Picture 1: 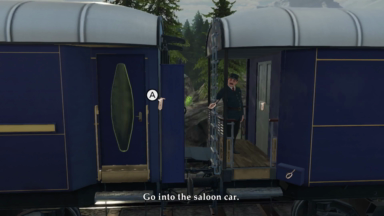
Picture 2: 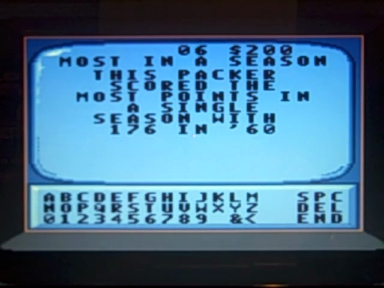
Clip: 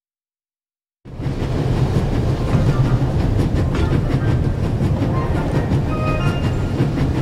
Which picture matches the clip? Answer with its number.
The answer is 1